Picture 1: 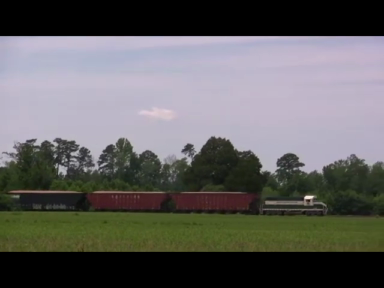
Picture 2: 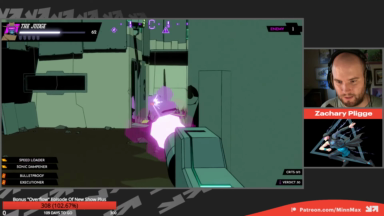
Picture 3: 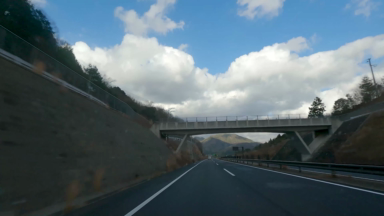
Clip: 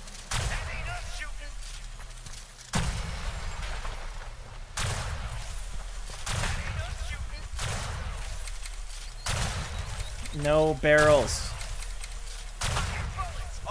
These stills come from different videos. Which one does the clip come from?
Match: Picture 2